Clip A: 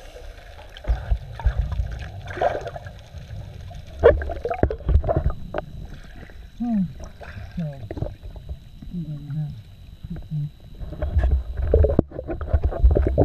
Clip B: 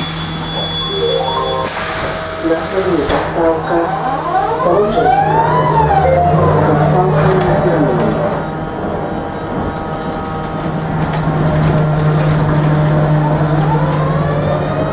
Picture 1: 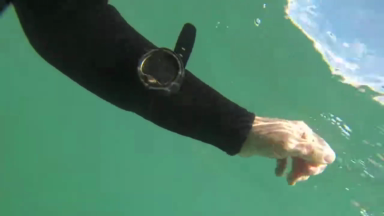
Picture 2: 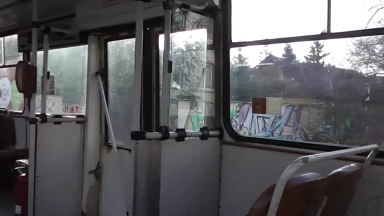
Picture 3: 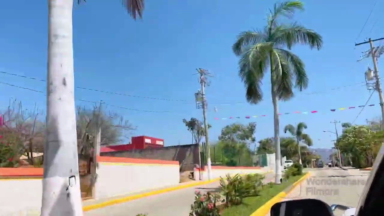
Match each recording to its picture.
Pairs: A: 1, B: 2